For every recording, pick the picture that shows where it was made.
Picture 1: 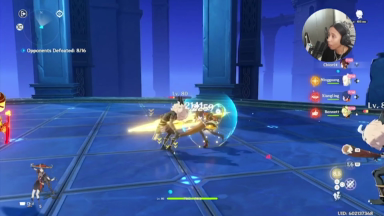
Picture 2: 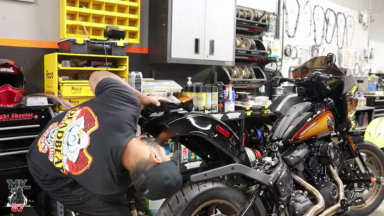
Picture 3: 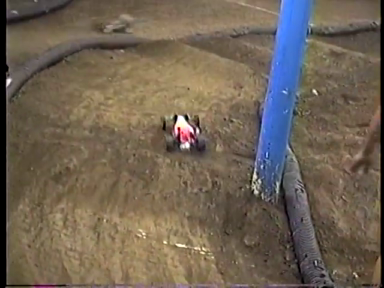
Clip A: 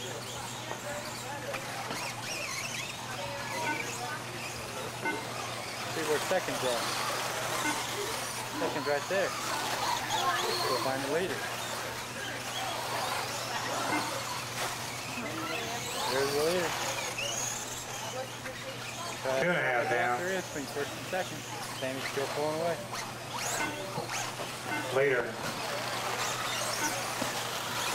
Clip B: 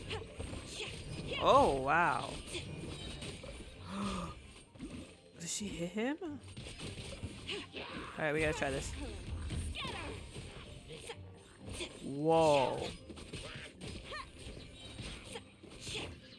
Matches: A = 3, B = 1